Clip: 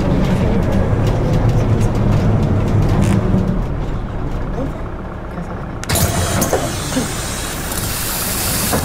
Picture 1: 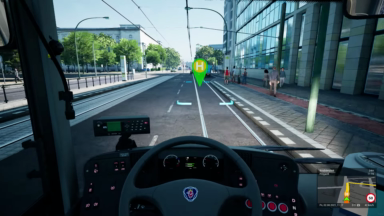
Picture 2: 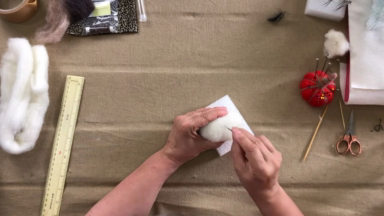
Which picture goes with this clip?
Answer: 1